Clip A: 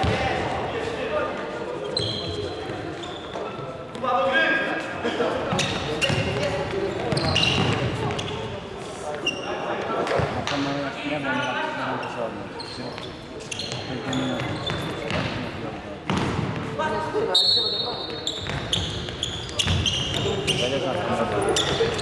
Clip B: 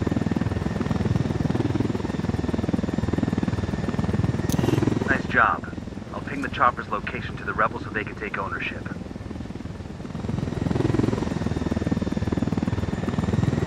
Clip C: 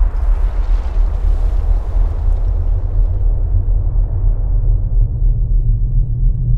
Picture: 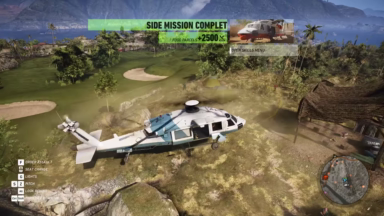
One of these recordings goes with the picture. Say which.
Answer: B